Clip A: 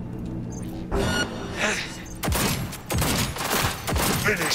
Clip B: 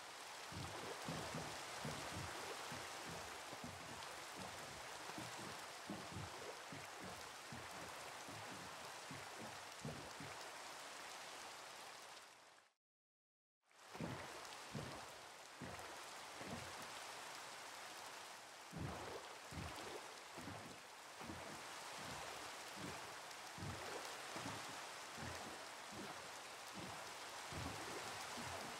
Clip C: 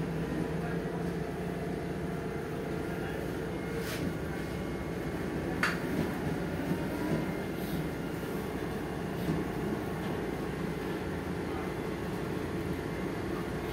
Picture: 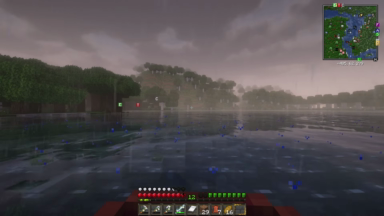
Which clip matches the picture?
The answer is B